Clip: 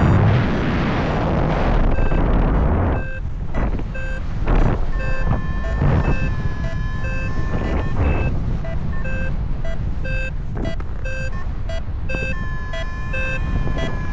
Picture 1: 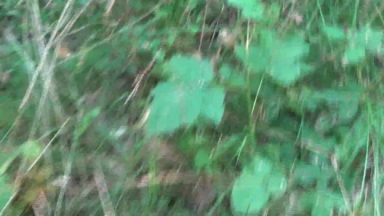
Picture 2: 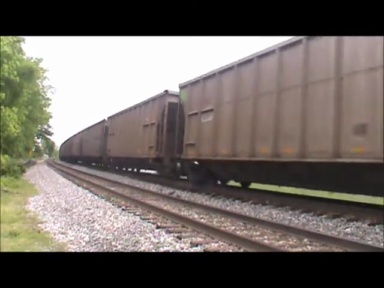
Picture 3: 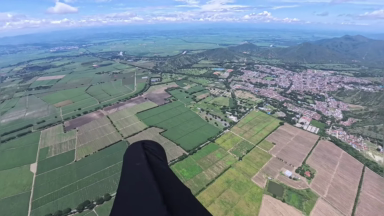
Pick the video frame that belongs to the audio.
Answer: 3